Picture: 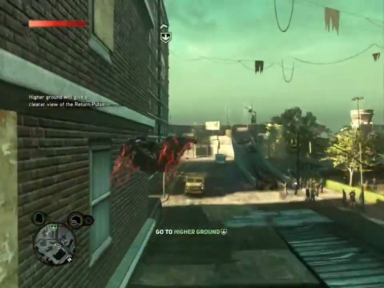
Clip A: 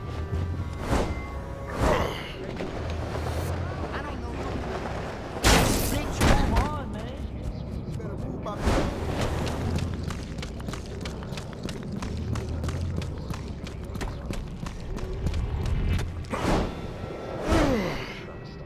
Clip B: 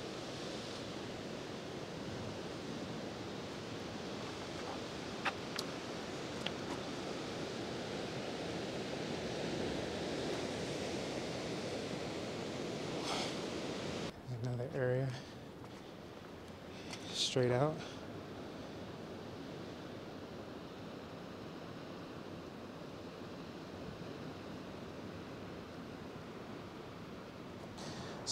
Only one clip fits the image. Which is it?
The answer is A